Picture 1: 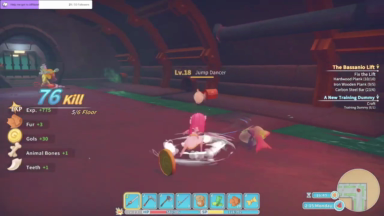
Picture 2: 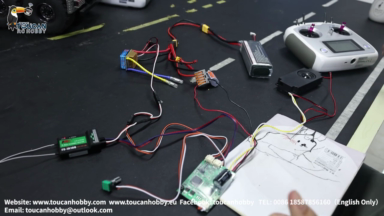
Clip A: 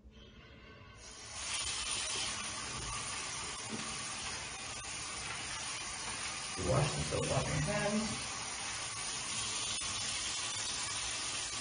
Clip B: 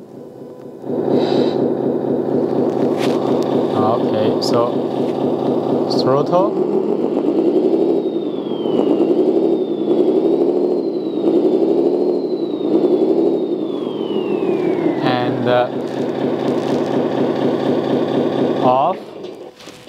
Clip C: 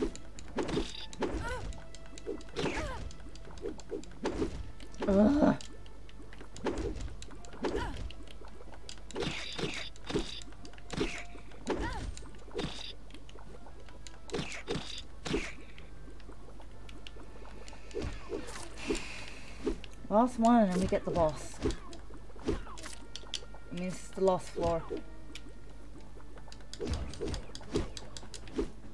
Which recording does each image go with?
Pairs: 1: C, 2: B